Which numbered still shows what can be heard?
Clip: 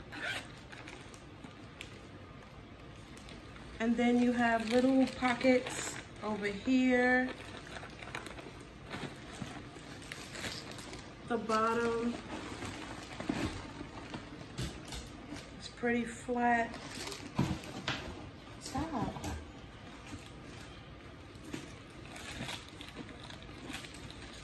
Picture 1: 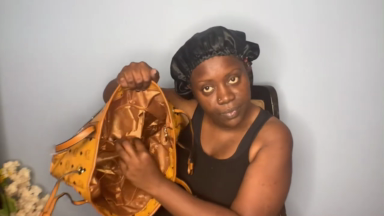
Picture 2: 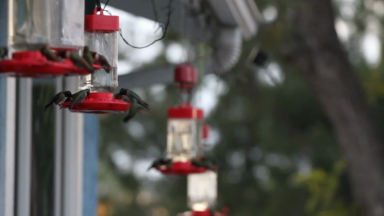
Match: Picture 1